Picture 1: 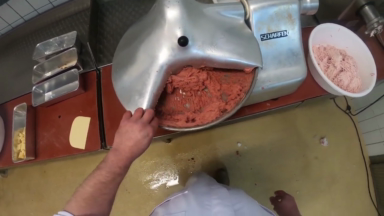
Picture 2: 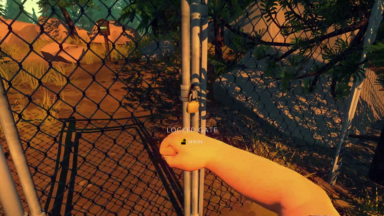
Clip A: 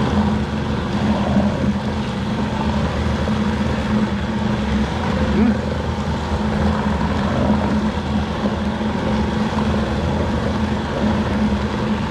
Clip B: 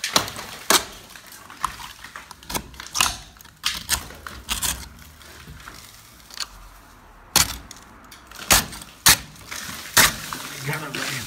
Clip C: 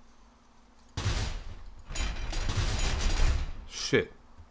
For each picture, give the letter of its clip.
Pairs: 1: A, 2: C